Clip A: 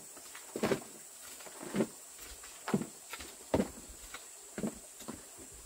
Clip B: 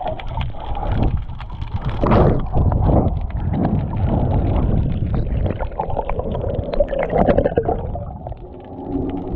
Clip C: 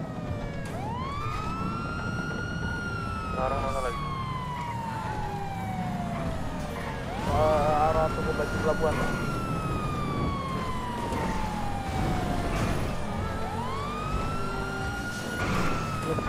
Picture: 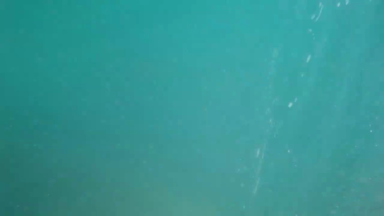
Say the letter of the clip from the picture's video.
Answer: B